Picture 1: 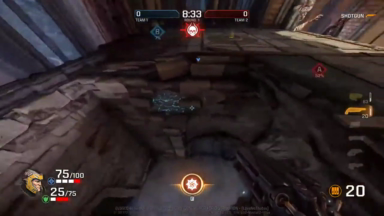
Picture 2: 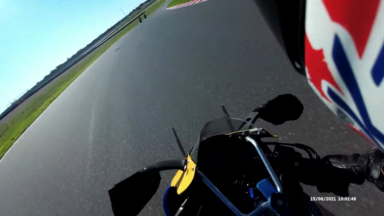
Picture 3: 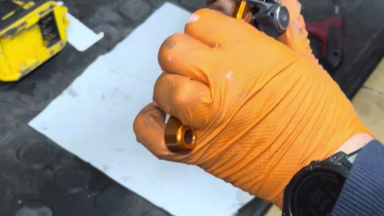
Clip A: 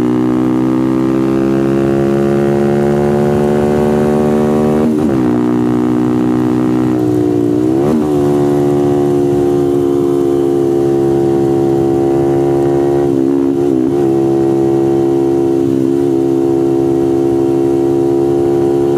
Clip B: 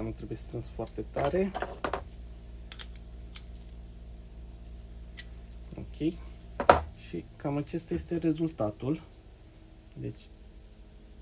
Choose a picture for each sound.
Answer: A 2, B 3